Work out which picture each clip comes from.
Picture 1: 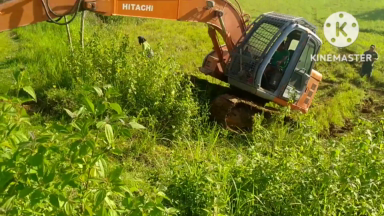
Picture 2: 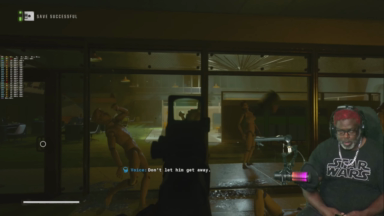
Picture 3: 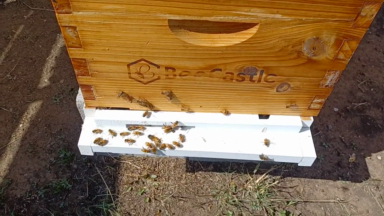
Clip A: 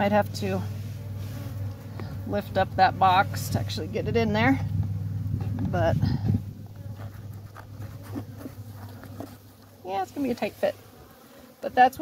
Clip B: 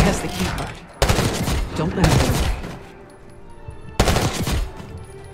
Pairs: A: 3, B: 2